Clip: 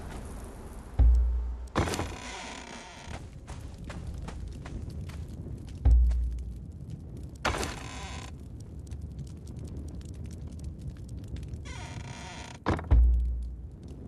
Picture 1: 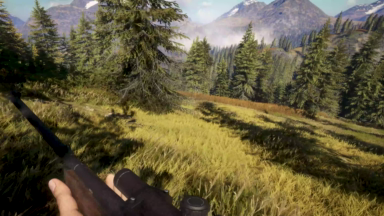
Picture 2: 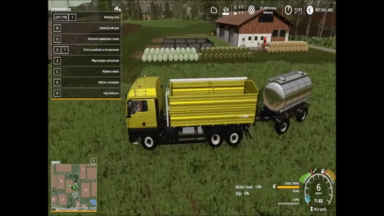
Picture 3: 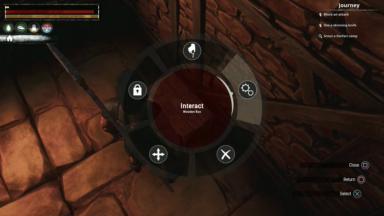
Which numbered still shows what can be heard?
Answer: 3